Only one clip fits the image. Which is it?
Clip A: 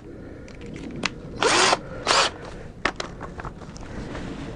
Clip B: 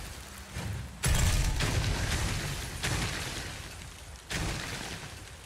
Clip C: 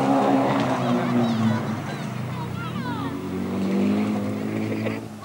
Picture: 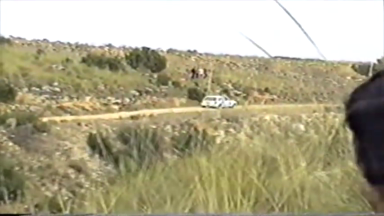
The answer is C